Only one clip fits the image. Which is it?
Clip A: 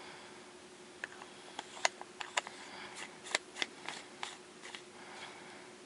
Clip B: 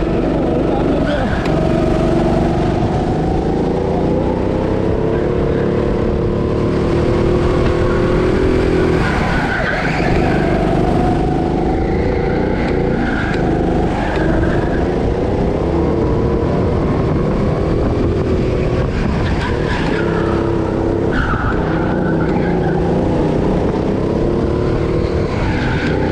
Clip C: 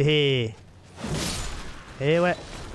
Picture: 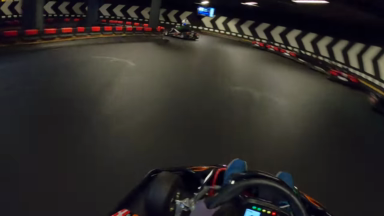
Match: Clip B